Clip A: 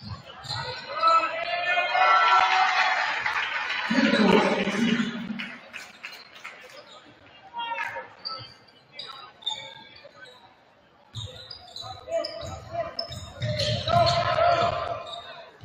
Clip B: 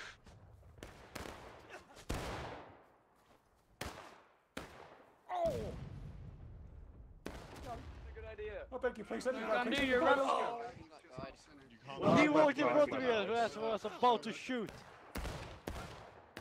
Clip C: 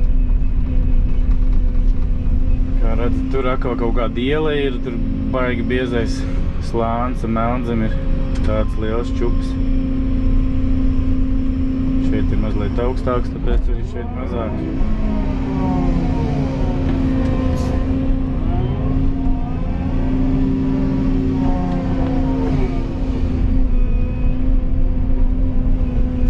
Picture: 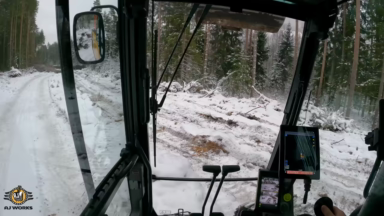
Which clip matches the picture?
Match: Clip C